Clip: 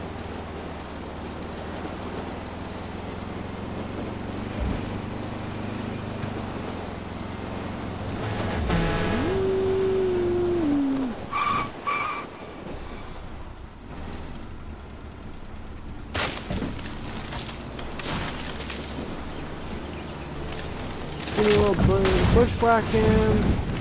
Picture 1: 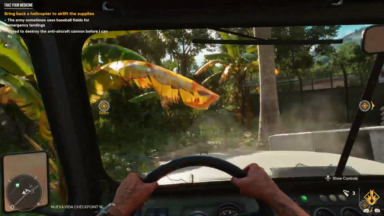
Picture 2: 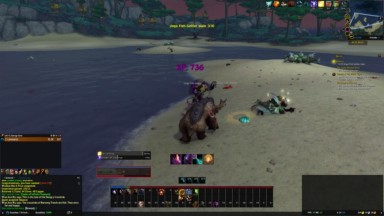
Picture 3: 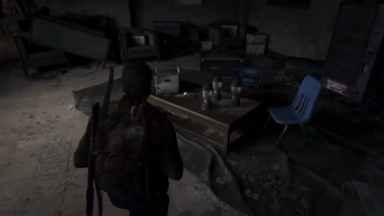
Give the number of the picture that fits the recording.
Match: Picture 1